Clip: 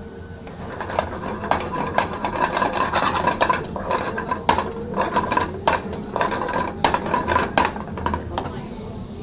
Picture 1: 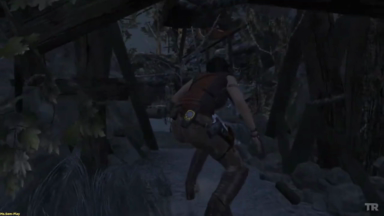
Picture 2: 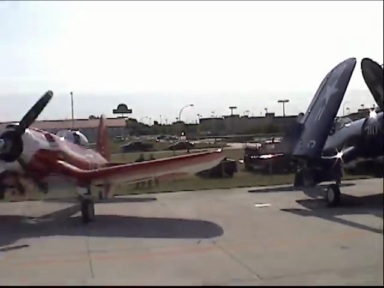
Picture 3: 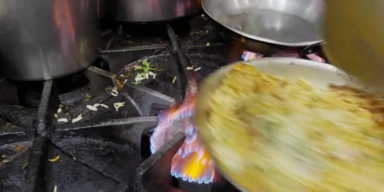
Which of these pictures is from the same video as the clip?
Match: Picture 3